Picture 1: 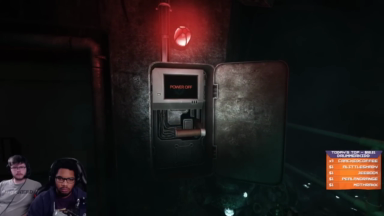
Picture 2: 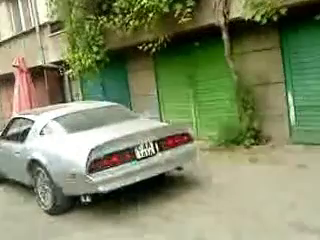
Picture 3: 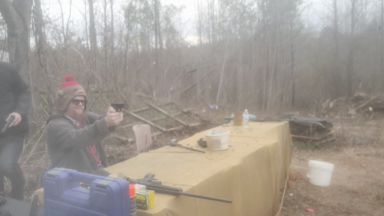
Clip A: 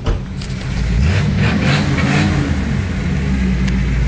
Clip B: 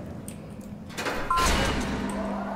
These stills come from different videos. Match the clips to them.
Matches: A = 2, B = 1